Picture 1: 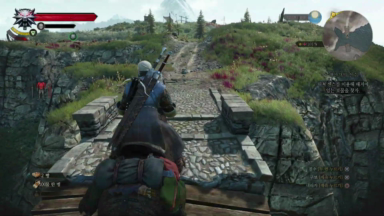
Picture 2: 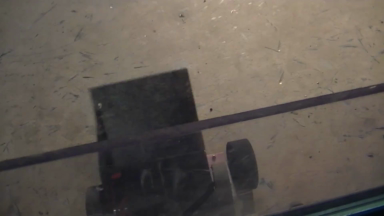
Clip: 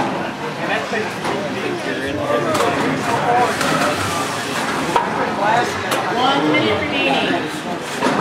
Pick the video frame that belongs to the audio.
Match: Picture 2